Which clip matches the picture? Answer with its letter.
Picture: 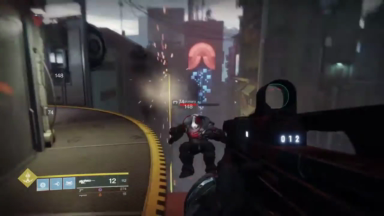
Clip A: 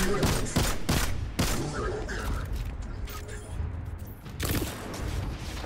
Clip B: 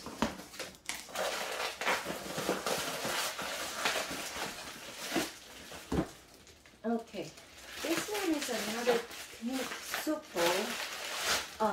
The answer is A